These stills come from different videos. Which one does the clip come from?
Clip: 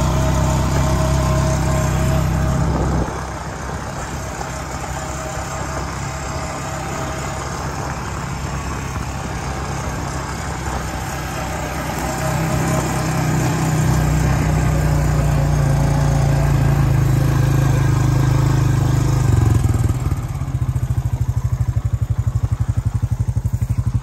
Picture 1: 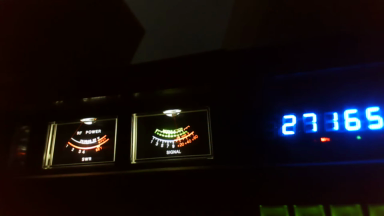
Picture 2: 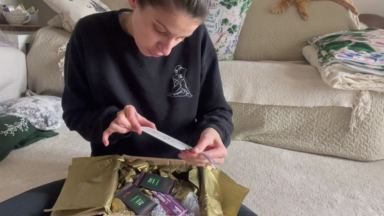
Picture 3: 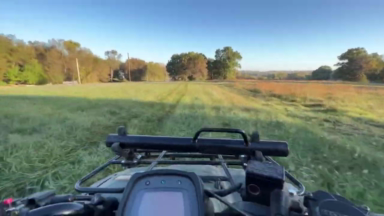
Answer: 3